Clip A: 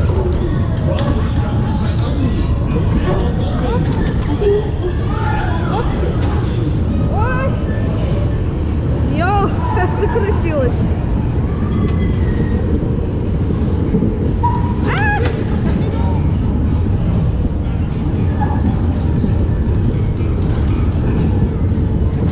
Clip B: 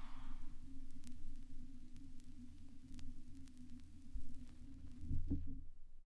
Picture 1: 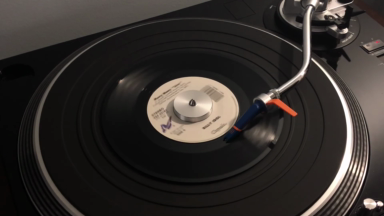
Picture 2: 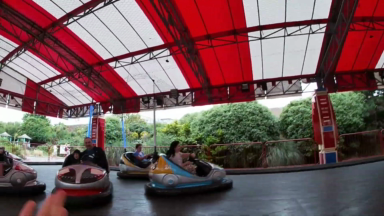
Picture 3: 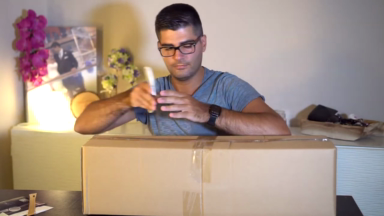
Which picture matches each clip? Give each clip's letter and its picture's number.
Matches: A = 2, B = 1